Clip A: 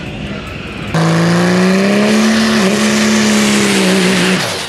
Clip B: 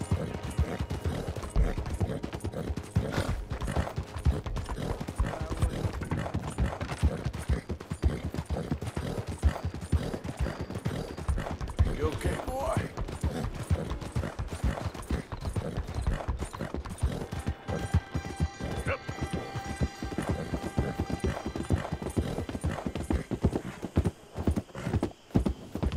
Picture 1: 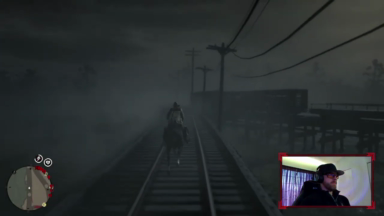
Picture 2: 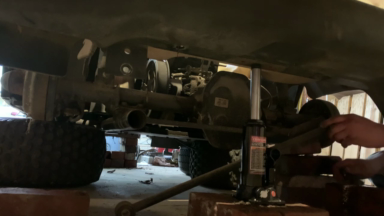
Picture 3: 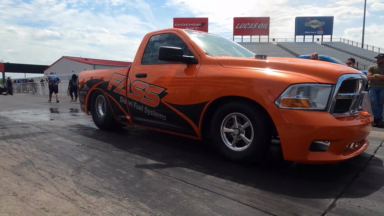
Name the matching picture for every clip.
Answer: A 3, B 1